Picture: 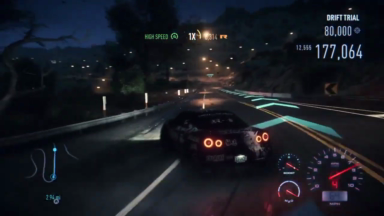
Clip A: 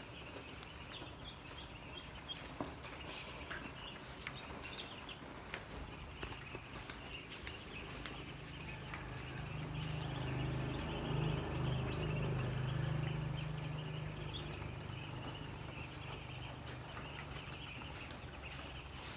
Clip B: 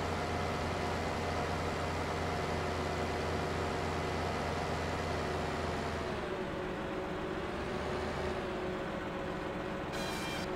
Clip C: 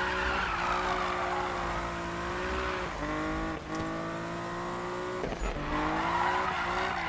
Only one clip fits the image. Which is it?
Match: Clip C